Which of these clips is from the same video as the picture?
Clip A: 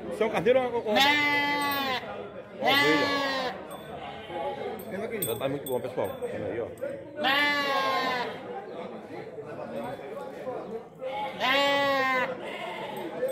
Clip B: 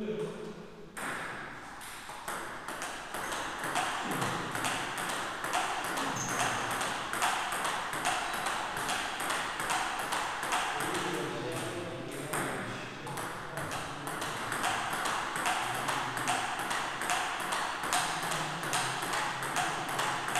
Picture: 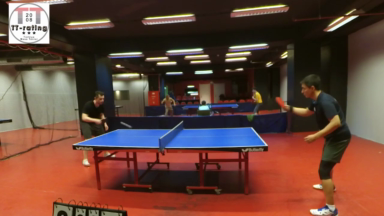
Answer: B